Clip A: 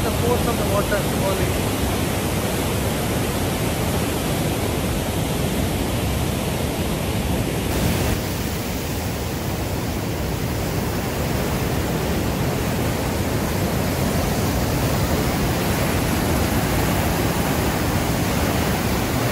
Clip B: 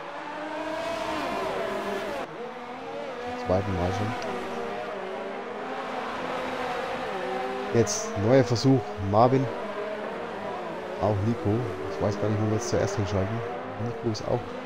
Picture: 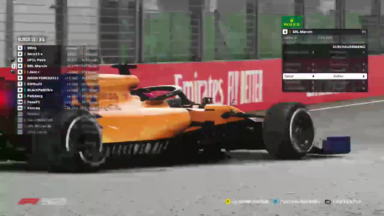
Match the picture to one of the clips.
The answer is B